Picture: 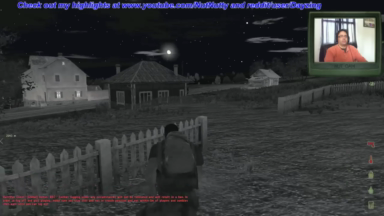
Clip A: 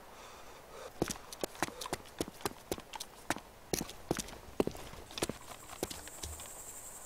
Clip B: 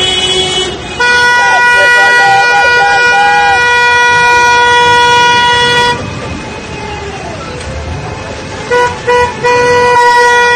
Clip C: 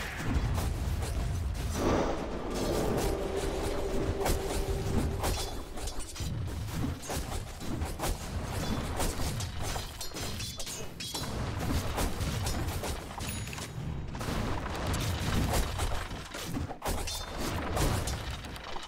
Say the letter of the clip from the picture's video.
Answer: A